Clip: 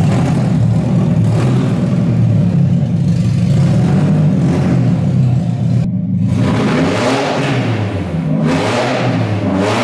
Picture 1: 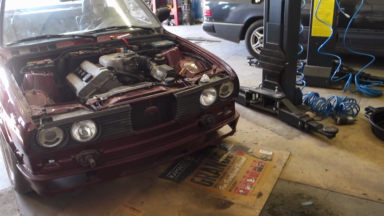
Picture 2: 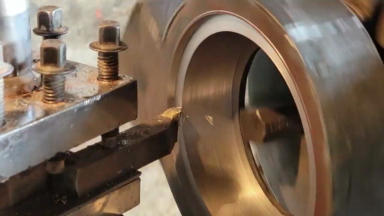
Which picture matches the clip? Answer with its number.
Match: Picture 1